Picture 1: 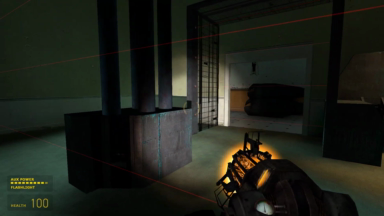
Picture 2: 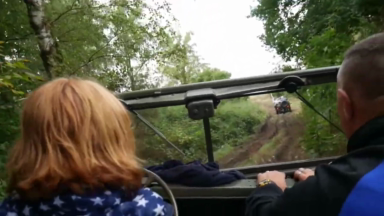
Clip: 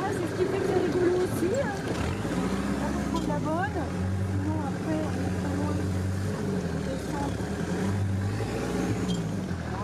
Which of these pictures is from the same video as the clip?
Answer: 2